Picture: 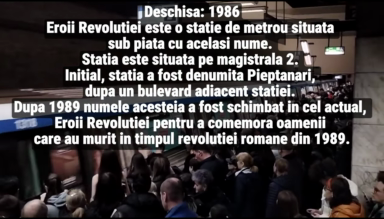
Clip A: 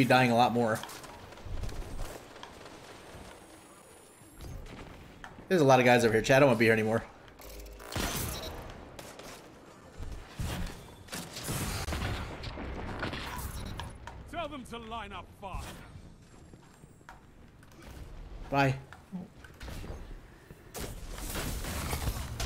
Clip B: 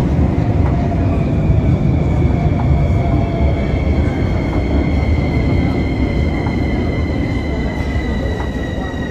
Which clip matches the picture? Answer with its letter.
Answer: B